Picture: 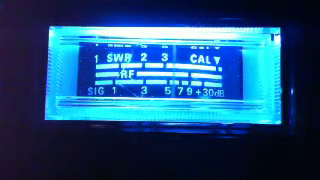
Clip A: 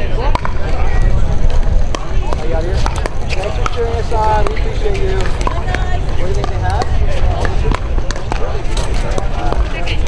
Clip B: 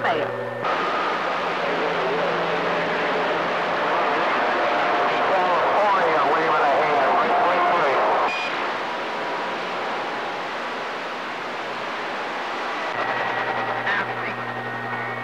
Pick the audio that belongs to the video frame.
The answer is B